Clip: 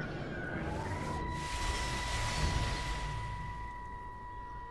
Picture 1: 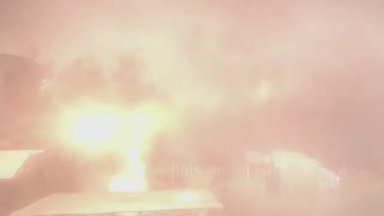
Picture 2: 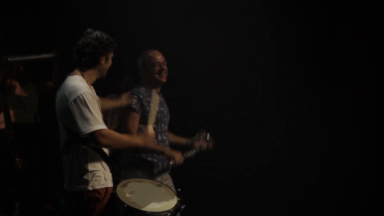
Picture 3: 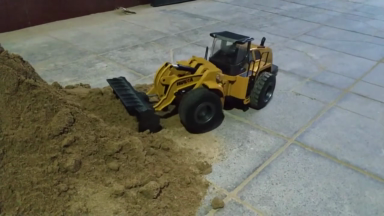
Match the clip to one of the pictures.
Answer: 1